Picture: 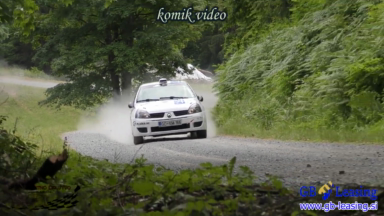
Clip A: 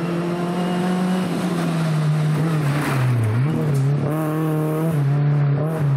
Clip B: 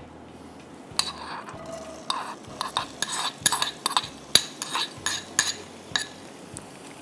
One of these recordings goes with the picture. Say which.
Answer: A